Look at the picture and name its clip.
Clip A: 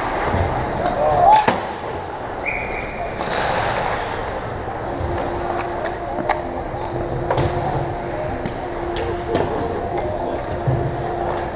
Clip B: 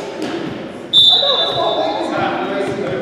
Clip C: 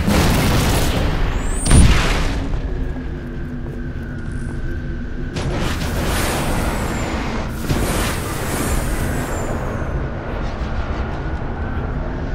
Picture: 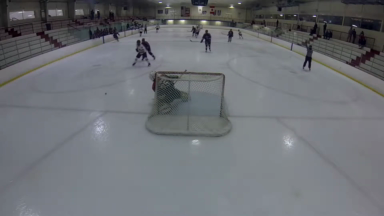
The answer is A